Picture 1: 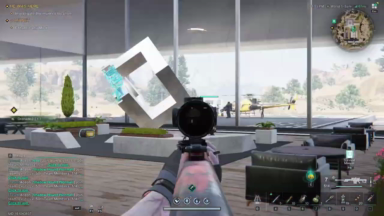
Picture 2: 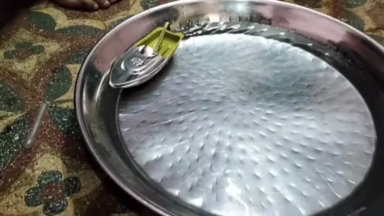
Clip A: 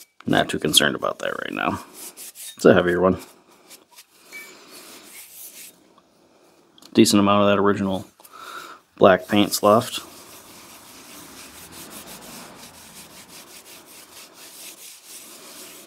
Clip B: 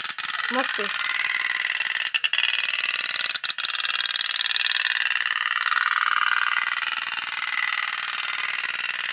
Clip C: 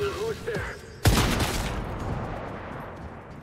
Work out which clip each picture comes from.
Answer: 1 C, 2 B